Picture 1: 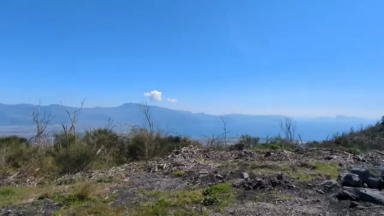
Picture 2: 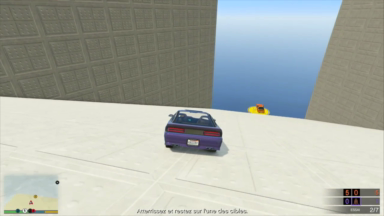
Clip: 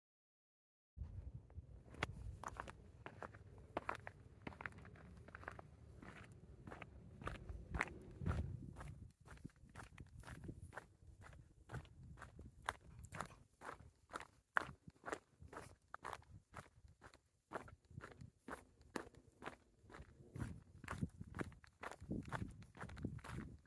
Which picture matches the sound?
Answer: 1